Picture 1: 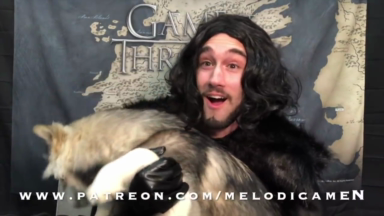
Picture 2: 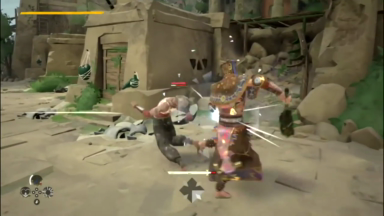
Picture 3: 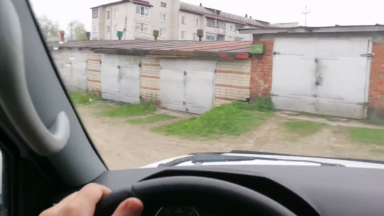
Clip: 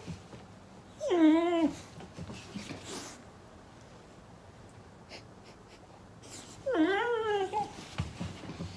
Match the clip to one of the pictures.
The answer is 1